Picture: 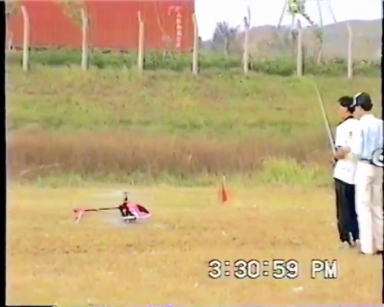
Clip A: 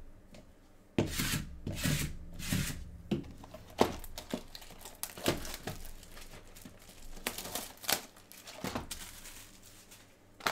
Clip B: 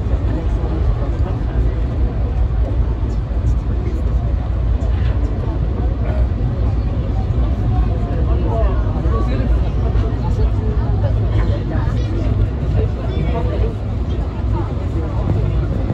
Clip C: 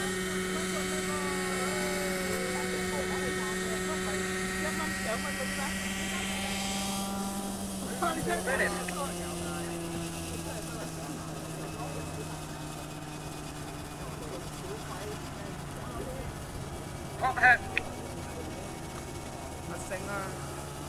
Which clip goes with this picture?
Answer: C